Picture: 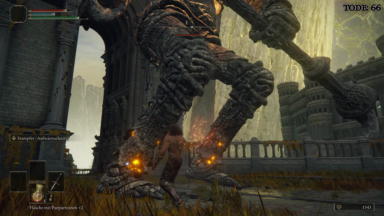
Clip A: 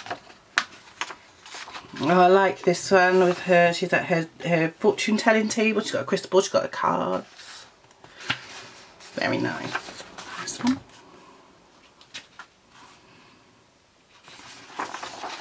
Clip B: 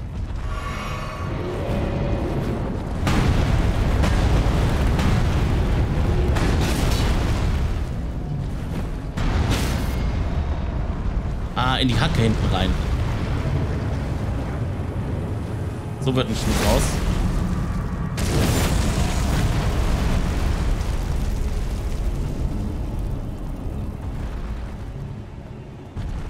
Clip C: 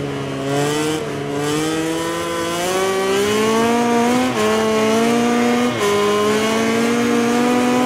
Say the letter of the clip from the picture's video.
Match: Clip B